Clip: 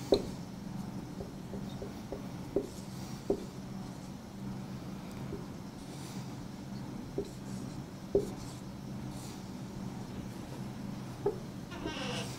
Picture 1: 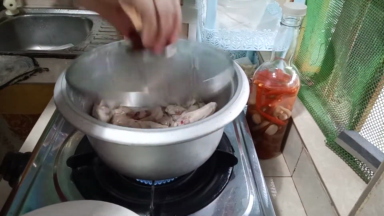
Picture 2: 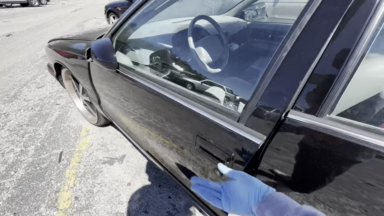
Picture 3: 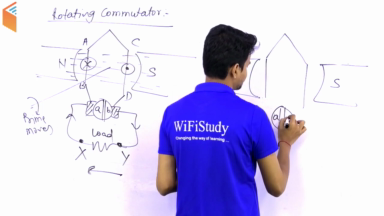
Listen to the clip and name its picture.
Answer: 3